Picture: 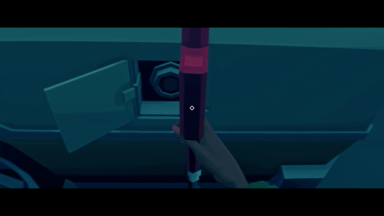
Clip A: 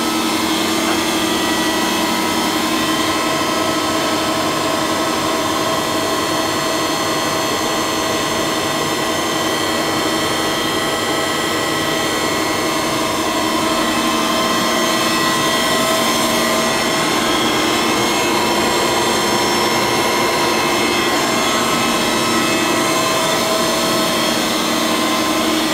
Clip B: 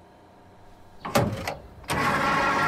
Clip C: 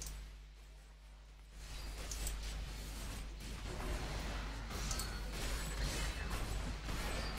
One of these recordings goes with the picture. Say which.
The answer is B